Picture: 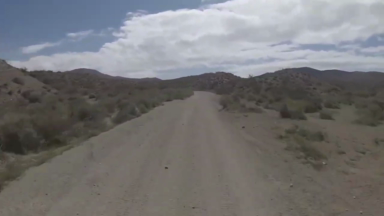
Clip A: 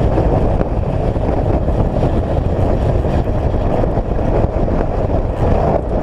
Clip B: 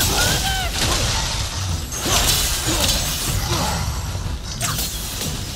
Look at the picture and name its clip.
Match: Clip A